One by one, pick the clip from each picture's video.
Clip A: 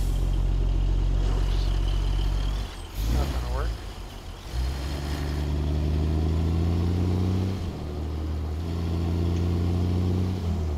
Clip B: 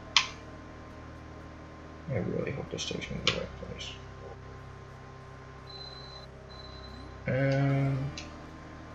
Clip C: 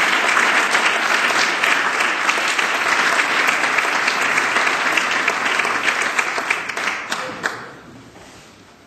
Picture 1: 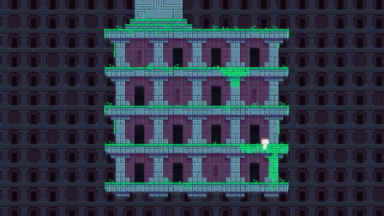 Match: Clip B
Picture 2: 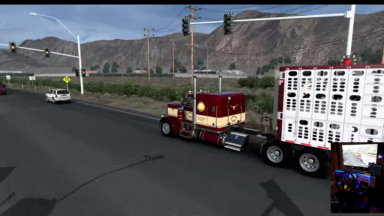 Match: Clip A